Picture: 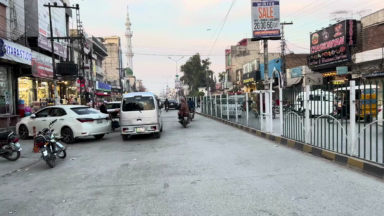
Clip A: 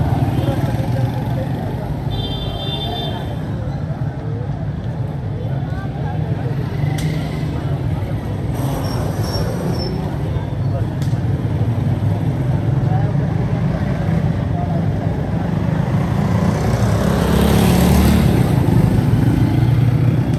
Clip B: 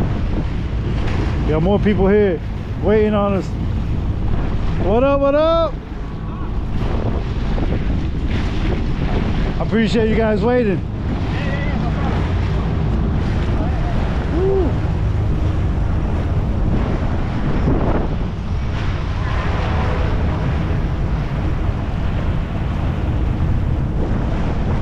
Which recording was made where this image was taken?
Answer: A